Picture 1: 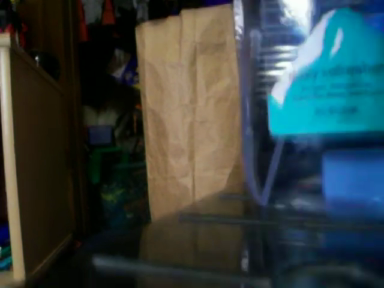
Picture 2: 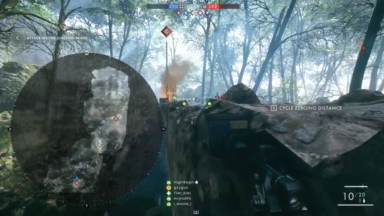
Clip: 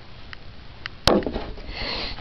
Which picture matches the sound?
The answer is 1